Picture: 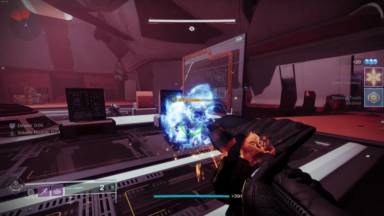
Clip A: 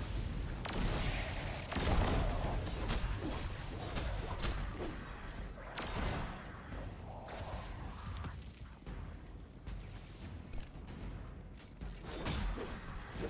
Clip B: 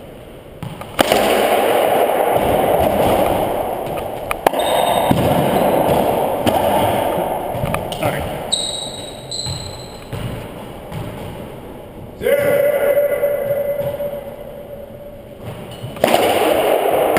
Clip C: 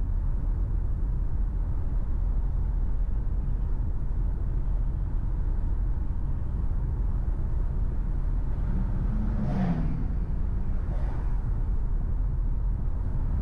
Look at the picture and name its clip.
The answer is A